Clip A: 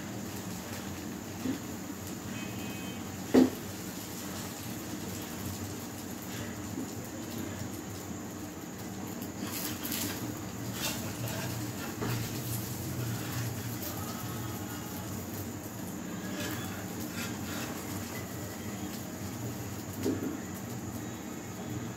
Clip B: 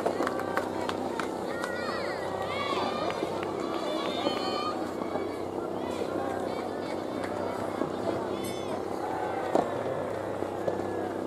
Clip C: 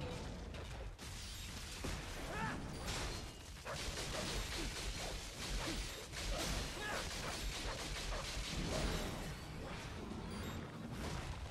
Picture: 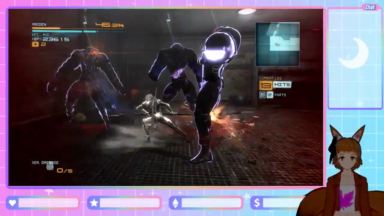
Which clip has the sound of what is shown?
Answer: C